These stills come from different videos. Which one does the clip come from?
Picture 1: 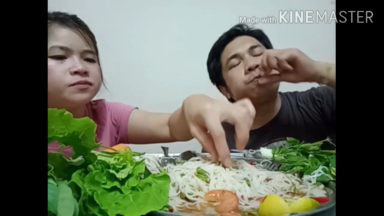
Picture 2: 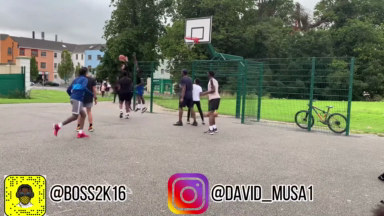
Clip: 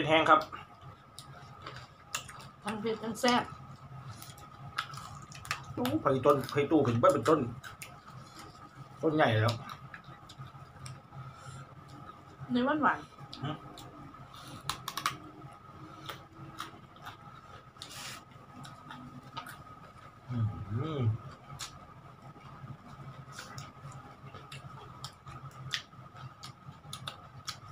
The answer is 1